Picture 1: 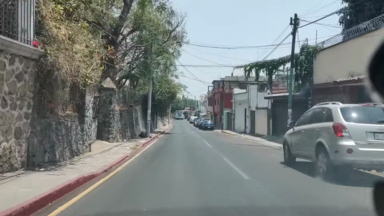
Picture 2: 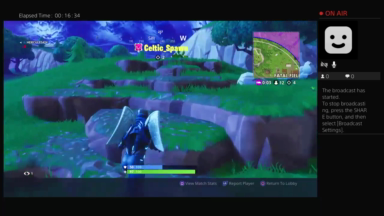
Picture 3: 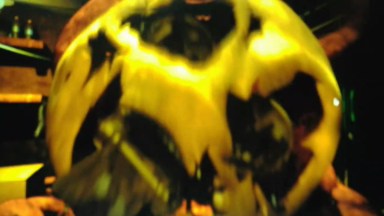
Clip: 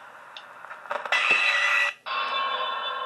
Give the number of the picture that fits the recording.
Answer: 3